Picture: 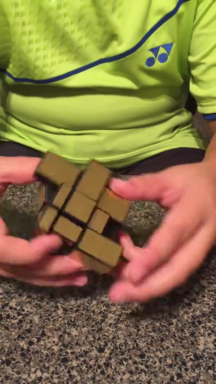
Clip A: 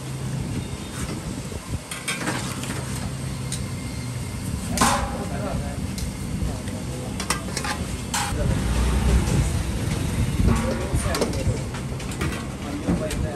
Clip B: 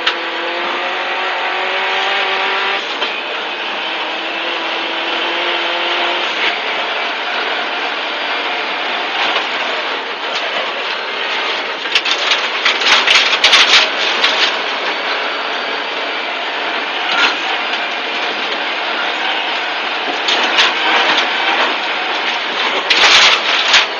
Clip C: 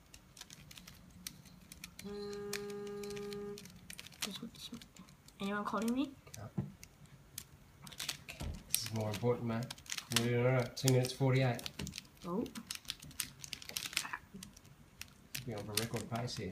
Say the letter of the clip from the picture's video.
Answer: C